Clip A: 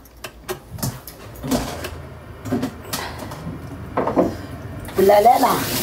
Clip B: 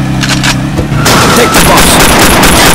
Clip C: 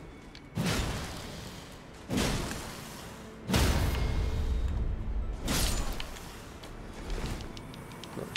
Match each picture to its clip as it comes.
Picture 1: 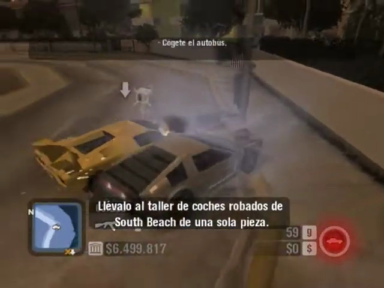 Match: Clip B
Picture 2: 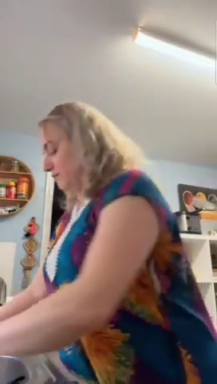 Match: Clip A